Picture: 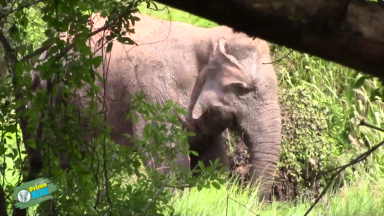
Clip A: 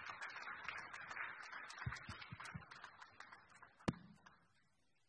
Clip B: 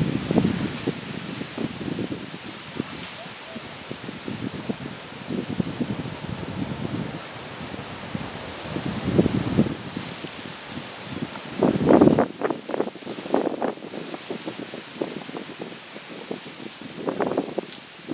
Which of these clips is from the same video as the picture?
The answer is B